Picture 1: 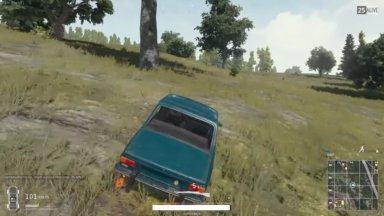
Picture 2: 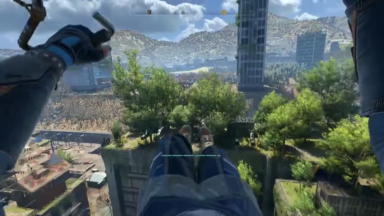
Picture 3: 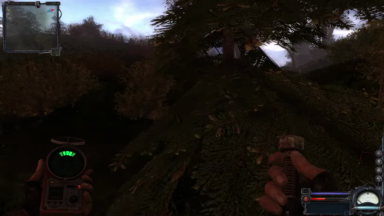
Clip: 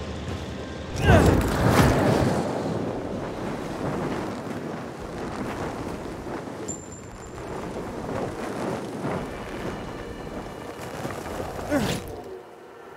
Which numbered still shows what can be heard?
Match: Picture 2